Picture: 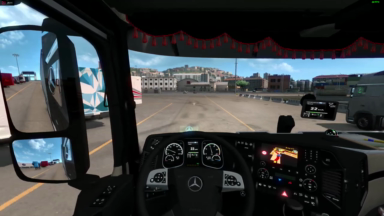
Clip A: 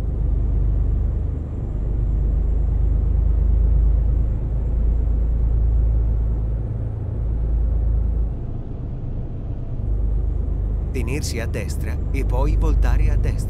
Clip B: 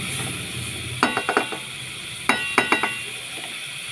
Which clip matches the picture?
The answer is A